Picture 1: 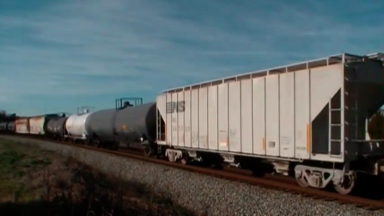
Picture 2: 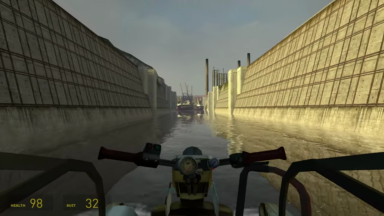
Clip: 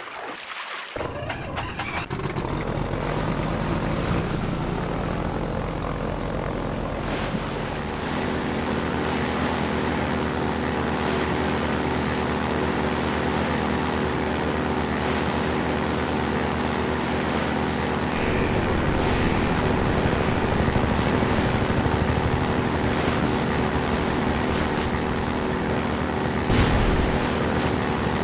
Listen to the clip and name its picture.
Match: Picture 2